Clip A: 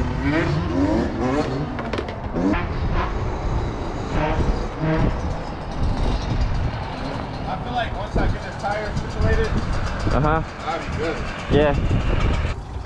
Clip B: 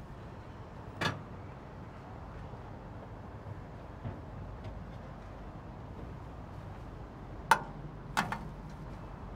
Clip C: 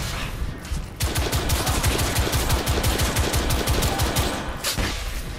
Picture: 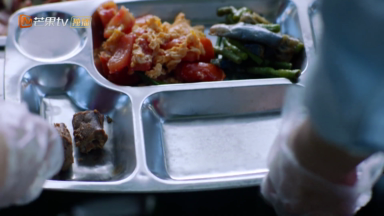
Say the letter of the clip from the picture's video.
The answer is B